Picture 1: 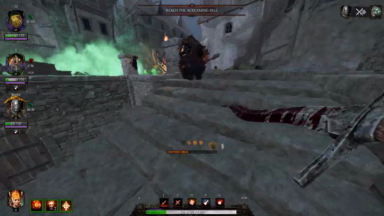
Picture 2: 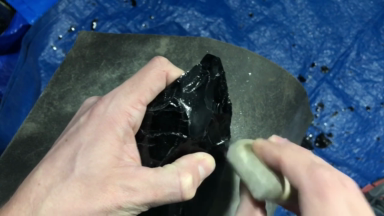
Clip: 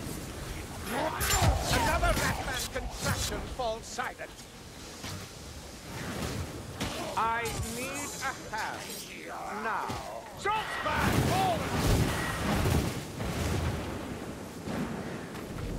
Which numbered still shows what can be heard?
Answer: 1